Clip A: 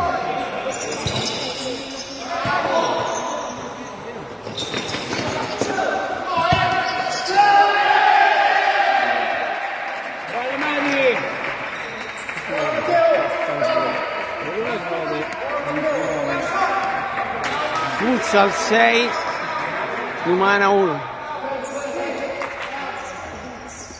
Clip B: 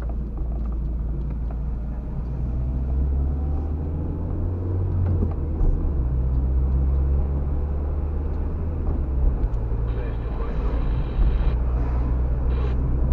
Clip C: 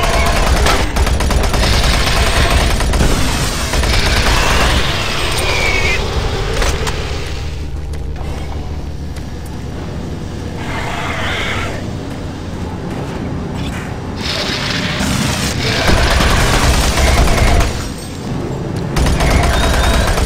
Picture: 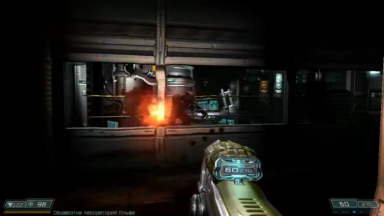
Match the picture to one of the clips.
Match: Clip C